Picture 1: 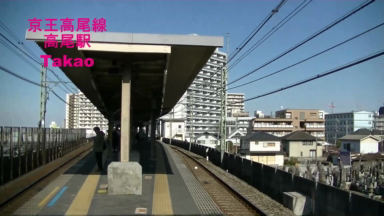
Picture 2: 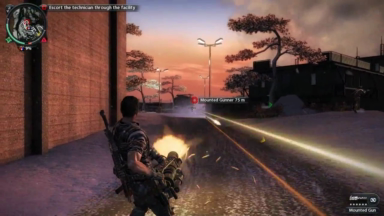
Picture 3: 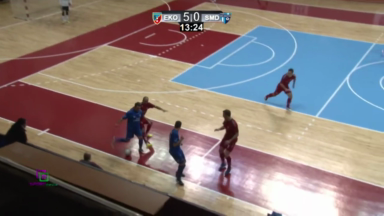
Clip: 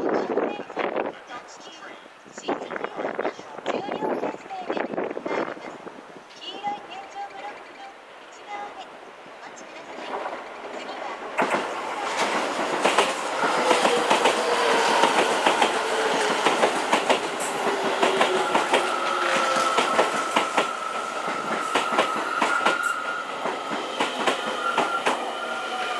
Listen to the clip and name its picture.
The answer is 1